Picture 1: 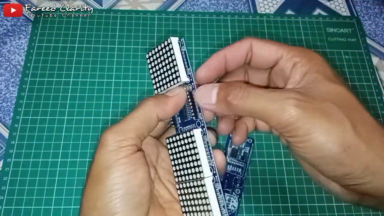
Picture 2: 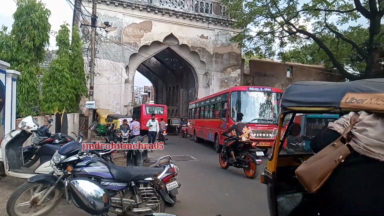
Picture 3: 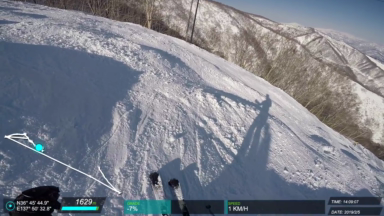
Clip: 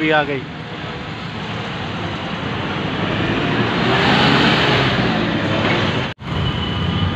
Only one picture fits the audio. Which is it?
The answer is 2